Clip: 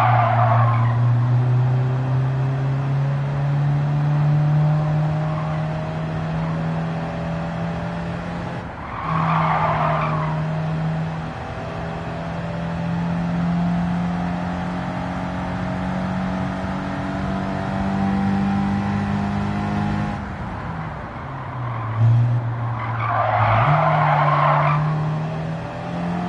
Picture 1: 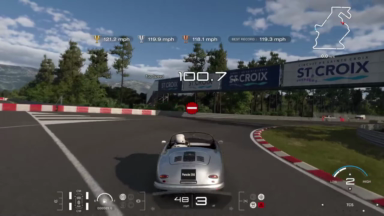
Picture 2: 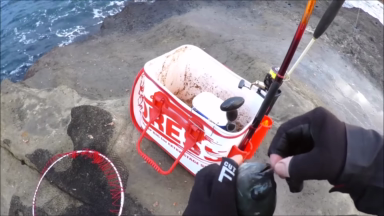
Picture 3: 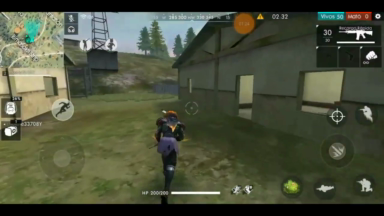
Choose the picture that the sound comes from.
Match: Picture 1